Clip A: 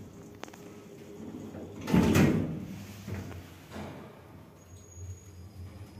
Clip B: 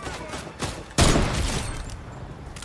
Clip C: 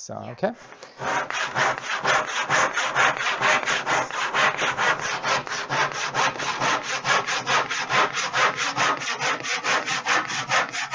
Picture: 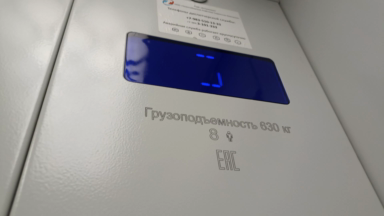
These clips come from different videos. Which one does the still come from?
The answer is A